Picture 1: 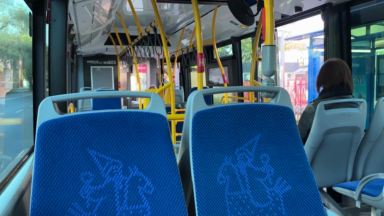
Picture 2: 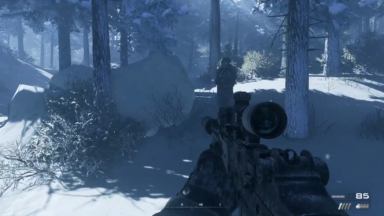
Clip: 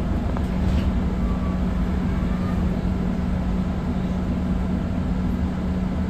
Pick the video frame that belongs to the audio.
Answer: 1